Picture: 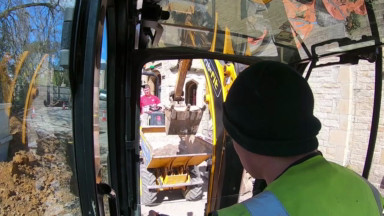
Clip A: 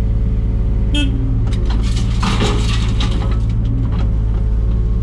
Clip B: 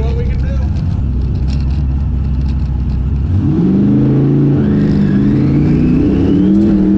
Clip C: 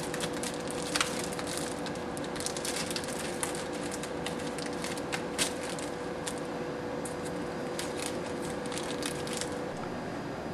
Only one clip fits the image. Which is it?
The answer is A